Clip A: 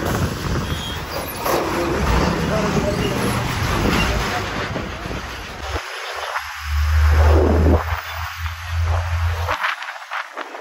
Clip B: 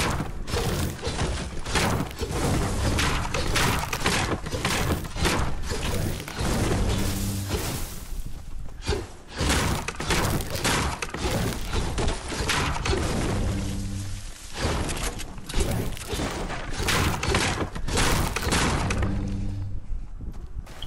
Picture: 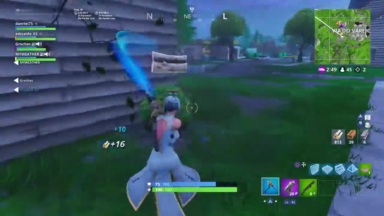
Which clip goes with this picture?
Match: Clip B